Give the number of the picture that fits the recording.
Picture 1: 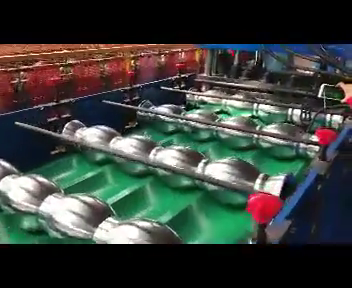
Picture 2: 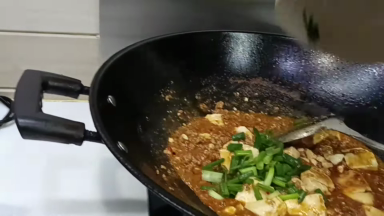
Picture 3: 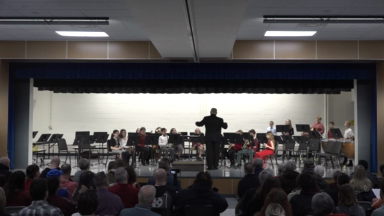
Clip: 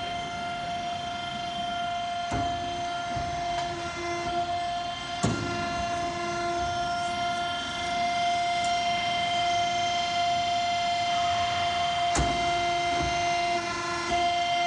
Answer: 1